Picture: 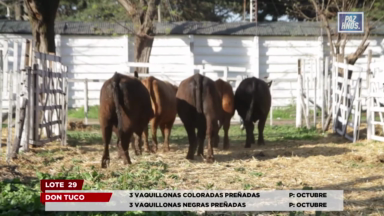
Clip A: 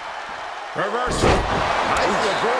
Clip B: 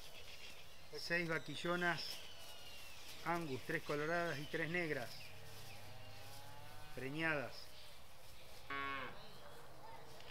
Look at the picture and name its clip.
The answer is B